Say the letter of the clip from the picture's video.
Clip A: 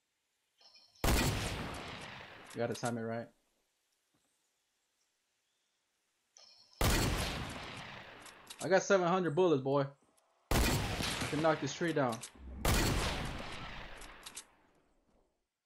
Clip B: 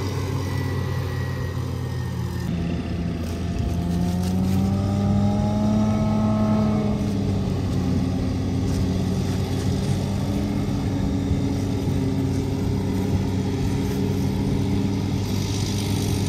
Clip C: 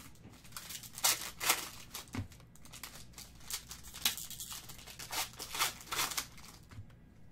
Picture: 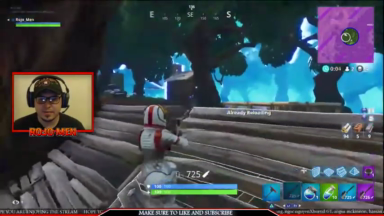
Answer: A